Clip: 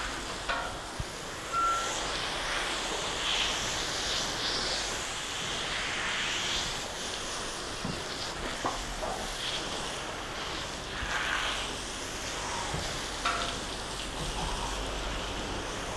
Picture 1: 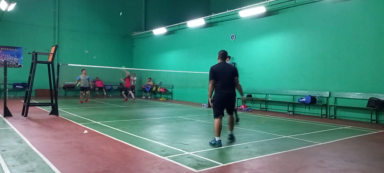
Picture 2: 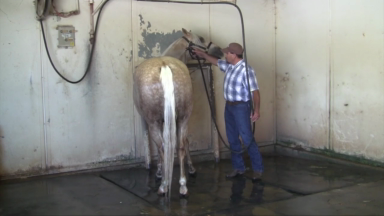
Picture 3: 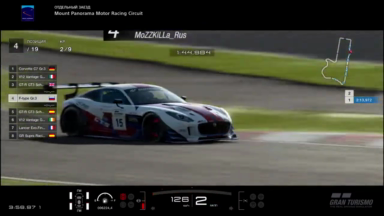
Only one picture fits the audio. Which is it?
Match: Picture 2